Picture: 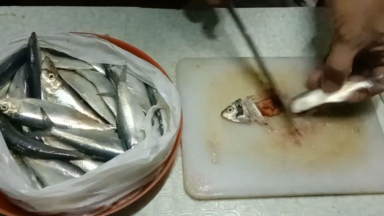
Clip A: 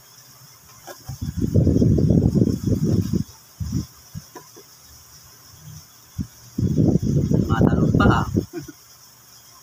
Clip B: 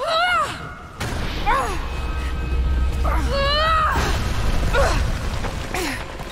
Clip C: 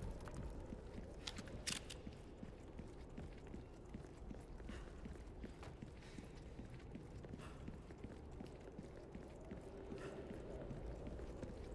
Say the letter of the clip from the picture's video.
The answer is A